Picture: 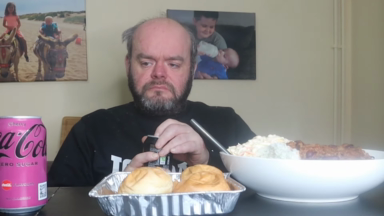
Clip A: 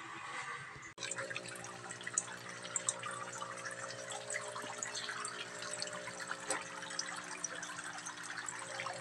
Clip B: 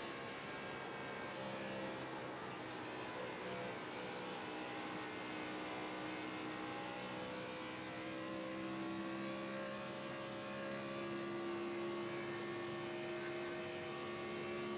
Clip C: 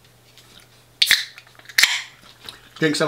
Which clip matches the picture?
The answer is C